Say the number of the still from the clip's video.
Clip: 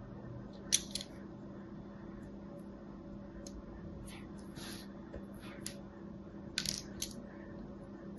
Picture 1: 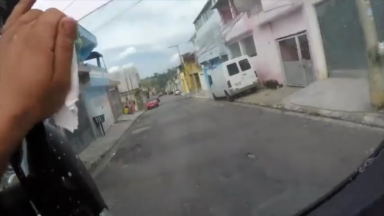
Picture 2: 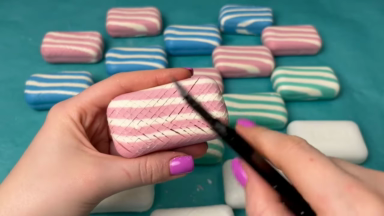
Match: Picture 2